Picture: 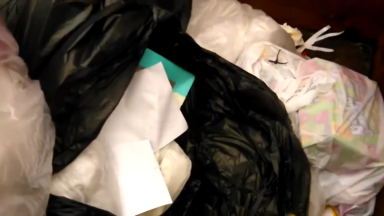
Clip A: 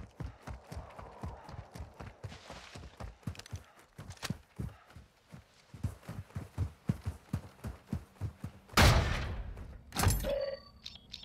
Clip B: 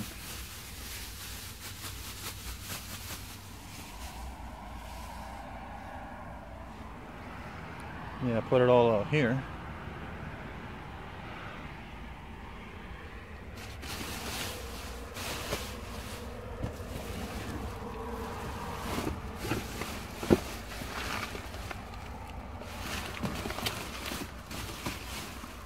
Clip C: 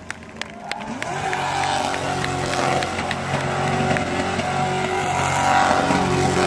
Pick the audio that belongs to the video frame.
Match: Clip B